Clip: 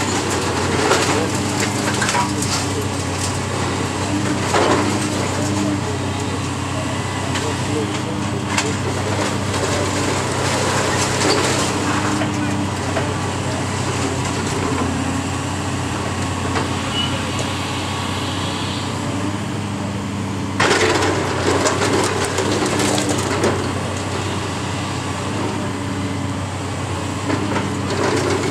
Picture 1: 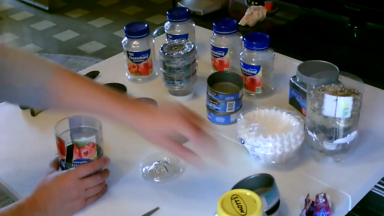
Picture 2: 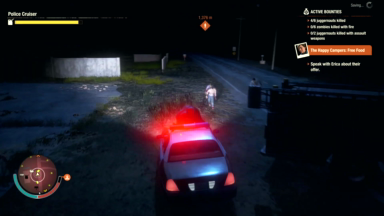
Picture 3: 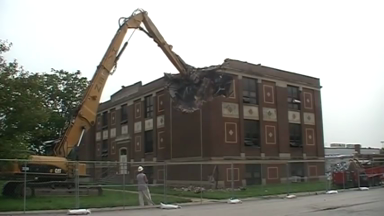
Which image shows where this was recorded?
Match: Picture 3